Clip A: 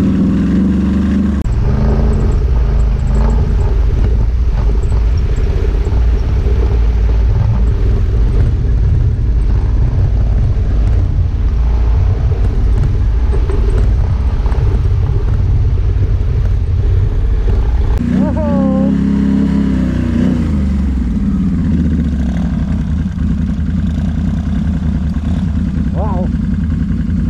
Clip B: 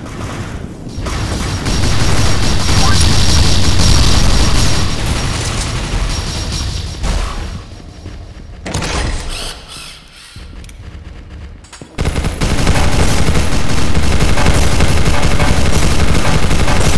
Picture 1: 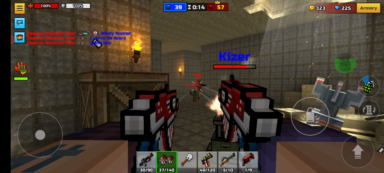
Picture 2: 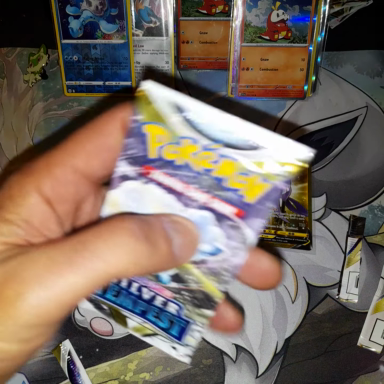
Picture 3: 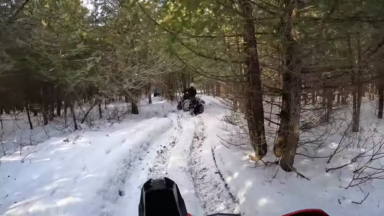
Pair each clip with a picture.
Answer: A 3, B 1